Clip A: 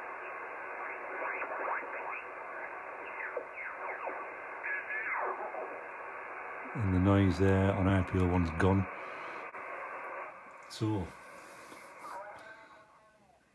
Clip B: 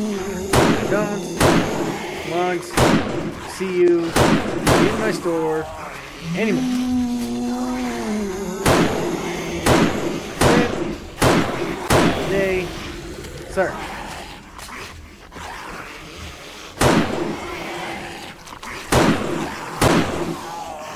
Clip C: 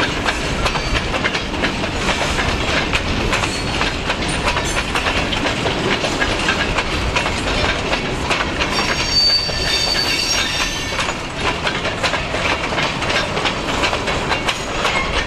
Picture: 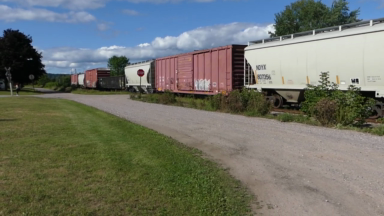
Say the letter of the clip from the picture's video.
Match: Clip C